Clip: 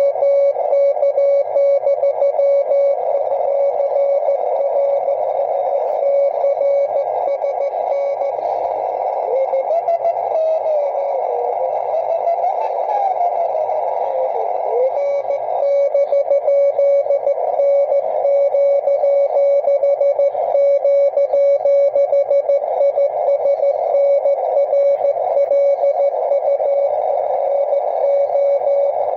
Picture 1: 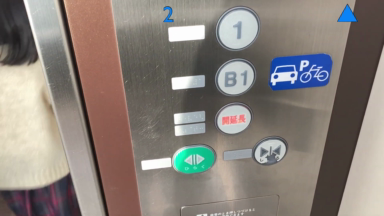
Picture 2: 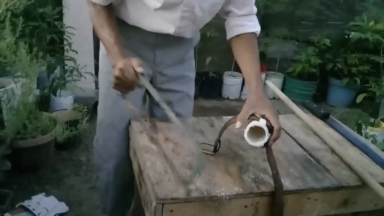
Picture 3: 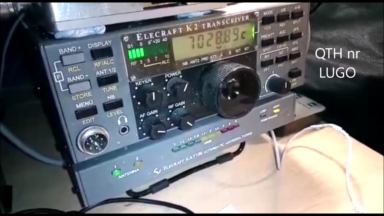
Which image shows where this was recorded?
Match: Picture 3